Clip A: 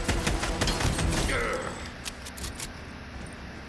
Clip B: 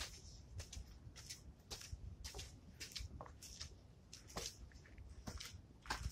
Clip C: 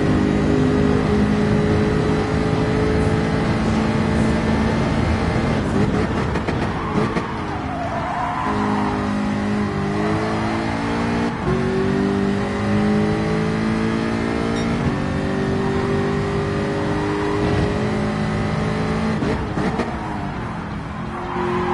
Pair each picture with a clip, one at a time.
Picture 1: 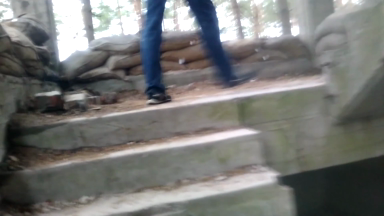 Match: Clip B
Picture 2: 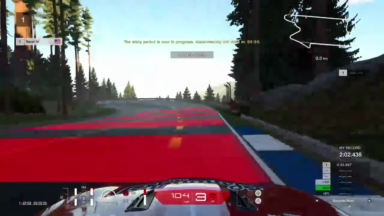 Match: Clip C